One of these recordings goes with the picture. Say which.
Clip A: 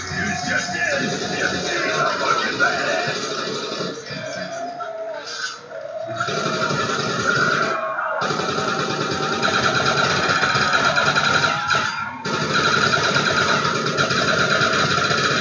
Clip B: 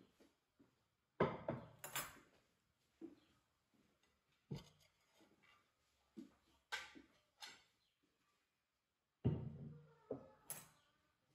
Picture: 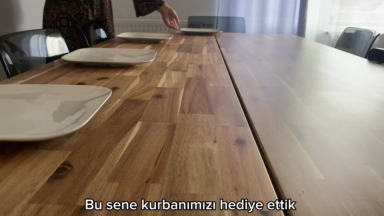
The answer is B